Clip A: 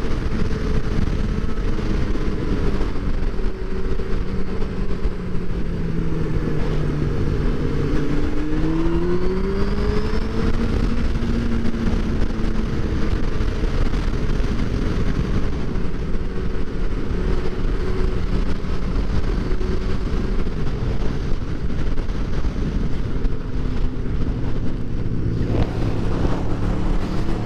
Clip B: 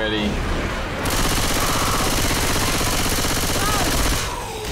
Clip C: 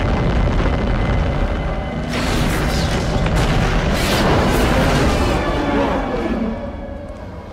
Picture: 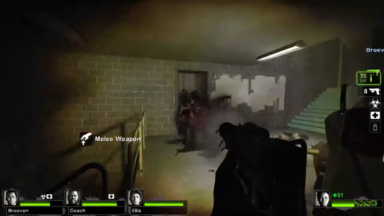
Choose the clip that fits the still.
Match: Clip B